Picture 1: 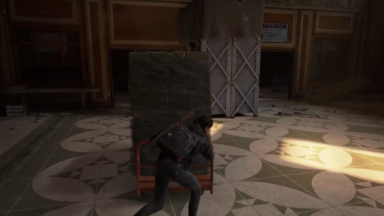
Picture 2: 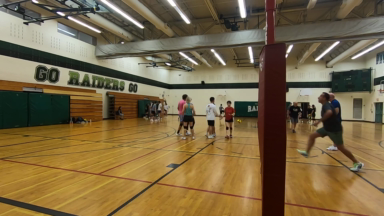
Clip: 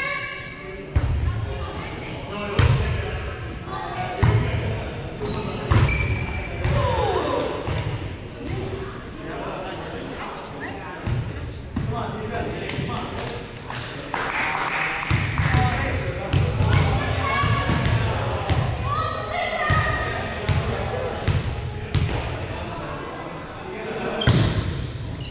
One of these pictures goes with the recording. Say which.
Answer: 2